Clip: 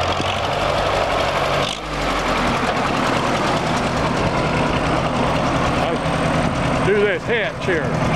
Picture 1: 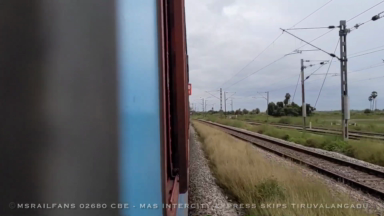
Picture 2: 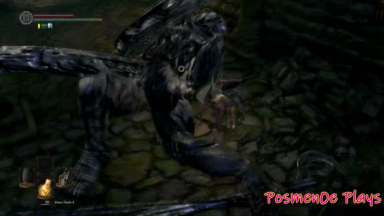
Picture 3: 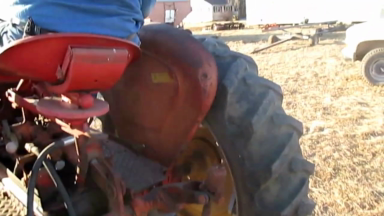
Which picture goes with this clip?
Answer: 3